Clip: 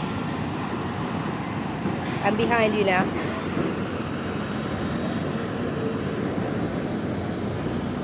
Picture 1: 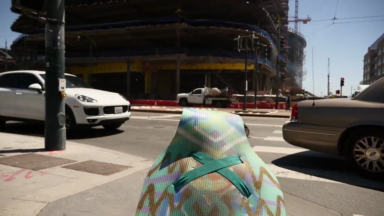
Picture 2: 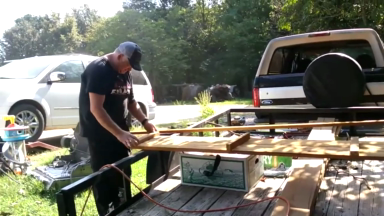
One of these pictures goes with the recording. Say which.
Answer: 1